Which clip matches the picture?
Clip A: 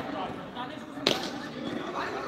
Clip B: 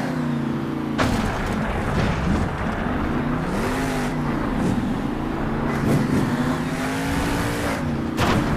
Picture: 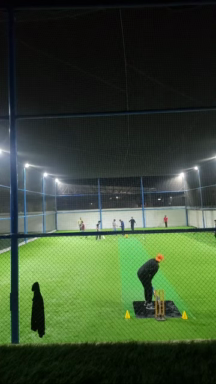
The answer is A